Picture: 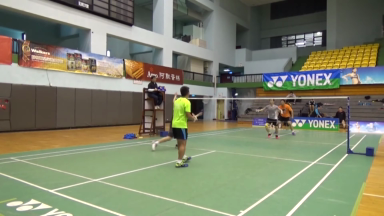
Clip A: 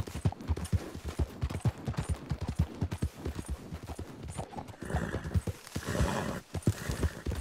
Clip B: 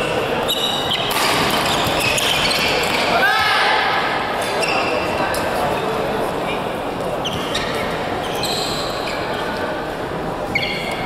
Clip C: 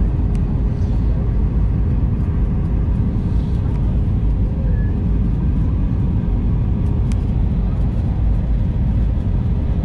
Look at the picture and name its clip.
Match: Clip B